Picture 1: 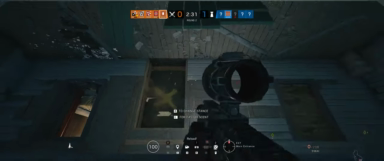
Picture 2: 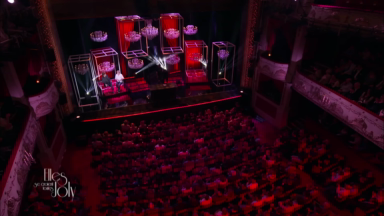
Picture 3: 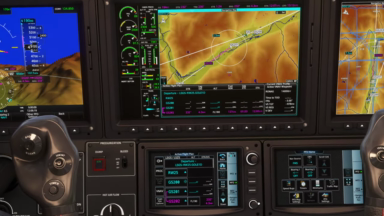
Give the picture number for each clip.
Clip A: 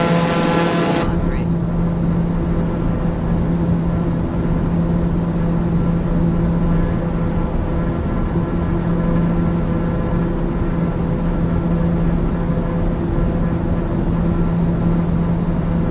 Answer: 3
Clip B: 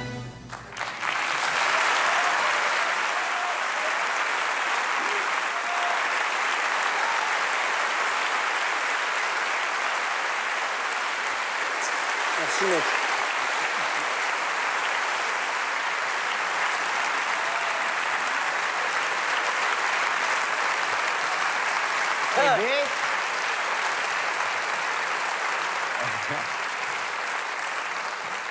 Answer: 2